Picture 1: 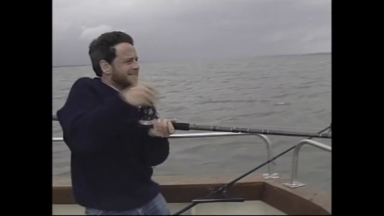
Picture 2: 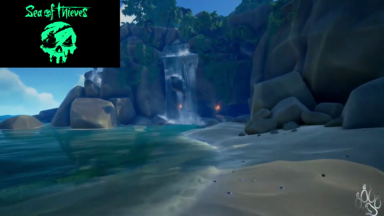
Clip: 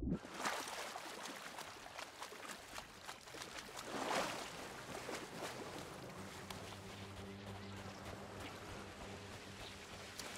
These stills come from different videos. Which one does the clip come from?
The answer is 2